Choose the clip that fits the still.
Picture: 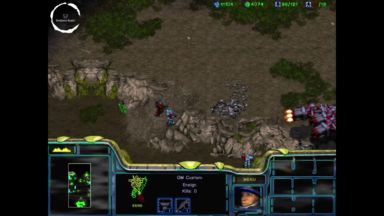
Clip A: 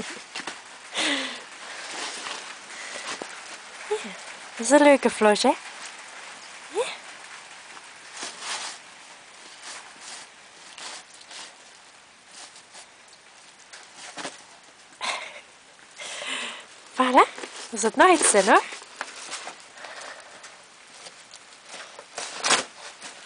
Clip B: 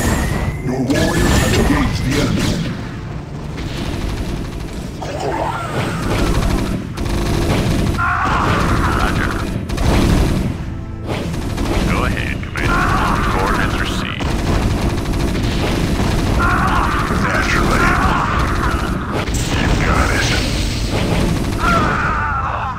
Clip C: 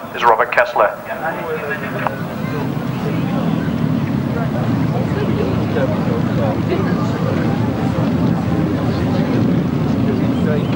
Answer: B